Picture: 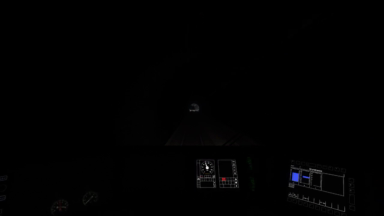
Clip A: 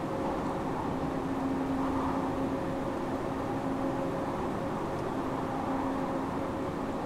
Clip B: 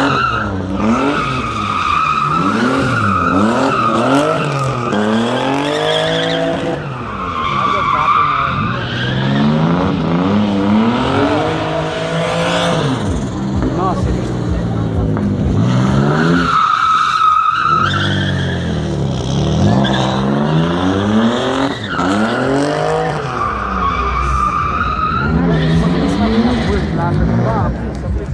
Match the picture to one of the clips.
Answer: A